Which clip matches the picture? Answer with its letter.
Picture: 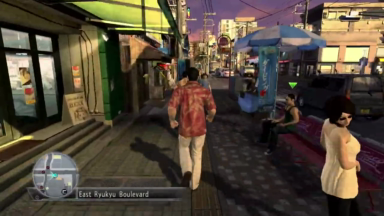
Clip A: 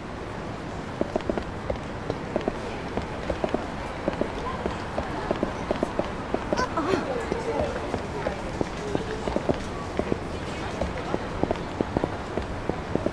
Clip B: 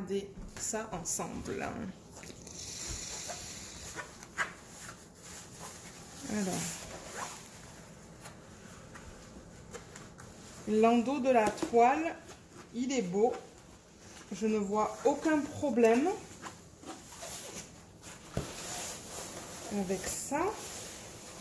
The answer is A